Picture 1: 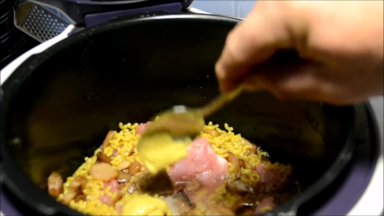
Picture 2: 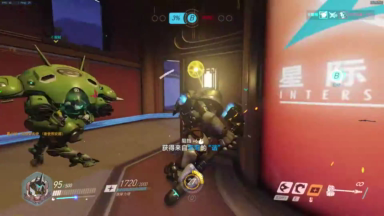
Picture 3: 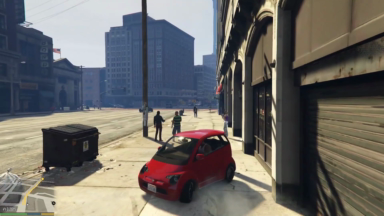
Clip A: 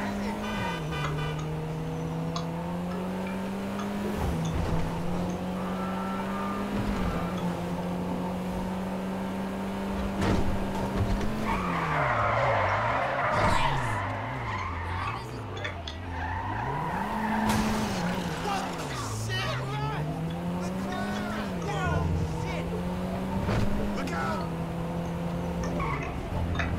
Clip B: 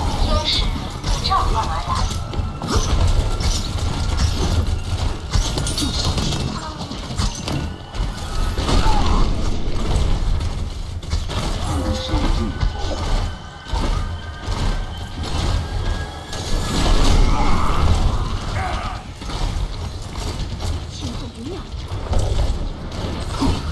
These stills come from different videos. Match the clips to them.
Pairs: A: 3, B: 2